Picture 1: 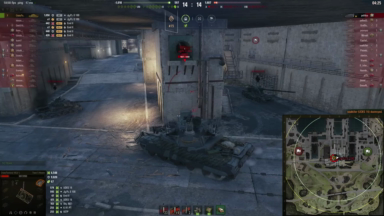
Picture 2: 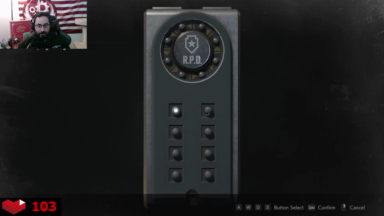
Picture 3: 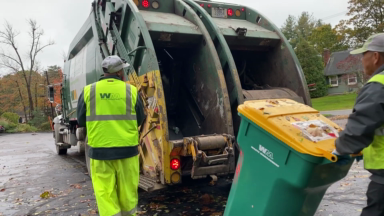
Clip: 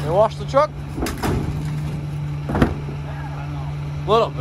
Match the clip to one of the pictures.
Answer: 3